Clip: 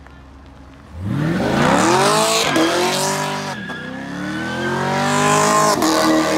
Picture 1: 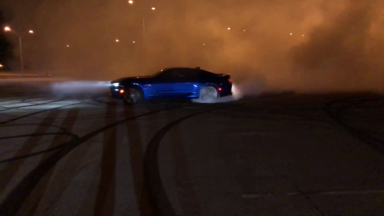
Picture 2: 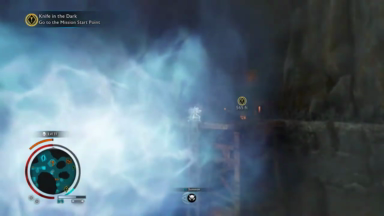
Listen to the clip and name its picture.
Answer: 1